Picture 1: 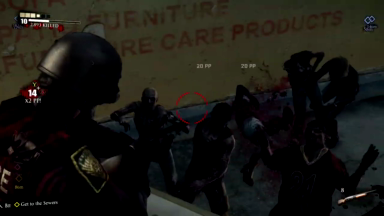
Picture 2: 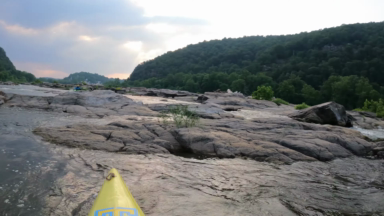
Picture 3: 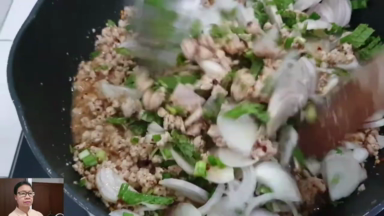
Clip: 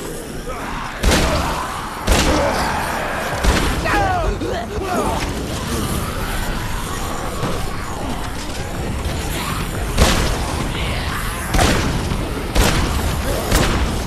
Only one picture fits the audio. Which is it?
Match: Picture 1